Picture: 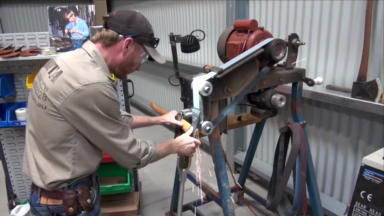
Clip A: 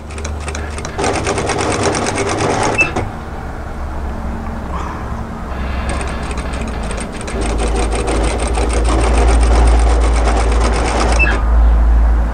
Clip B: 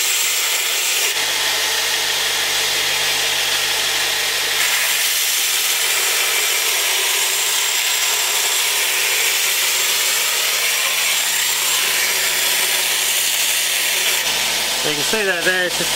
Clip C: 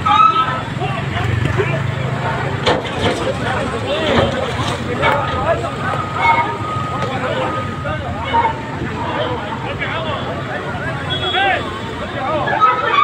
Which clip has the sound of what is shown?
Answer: B